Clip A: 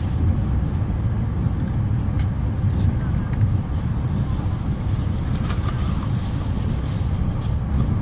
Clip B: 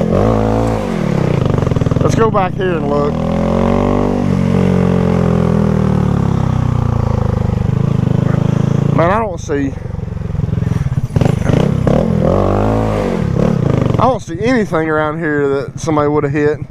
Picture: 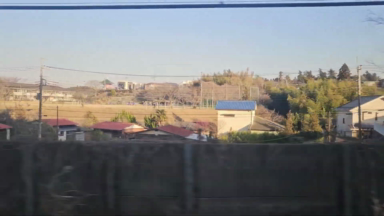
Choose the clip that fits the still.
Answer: A